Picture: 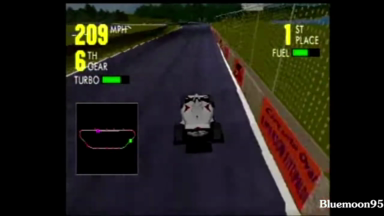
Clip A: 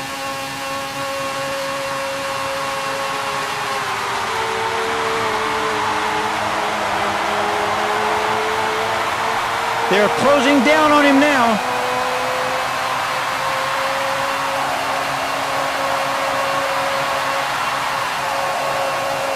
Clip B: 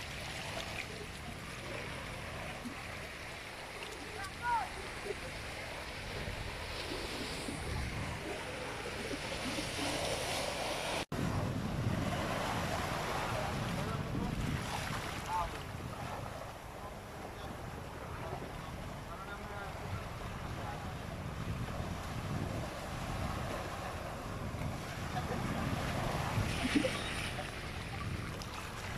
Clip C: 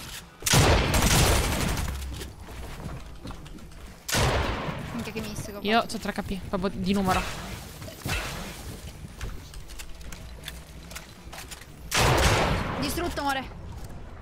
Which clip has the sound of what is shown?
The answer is A